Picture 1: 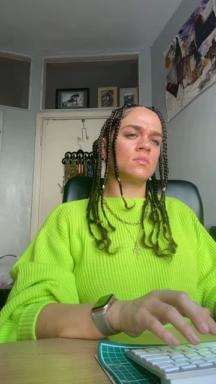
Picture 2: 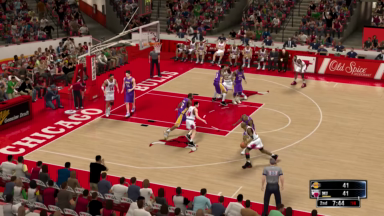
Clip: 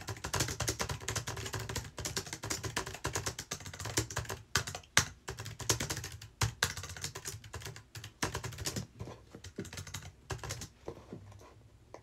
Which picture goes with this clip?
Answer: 1